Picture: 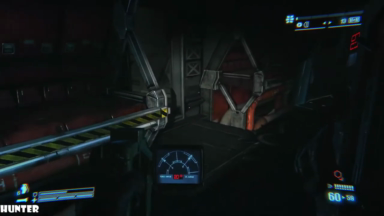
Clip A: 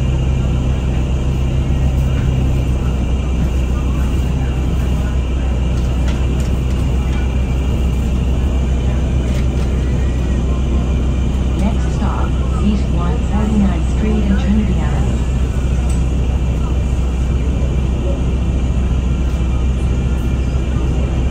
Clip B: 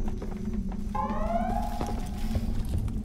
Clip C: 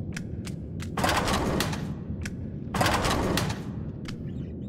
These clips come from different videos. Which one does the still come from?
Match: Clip B